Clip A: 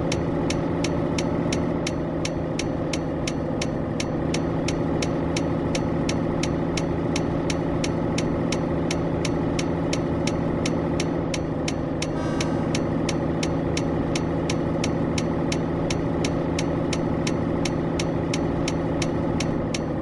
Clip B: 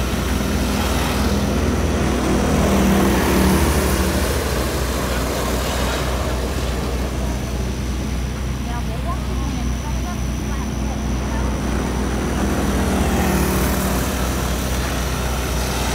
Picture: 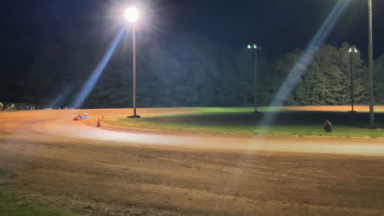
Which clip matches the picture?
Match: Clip B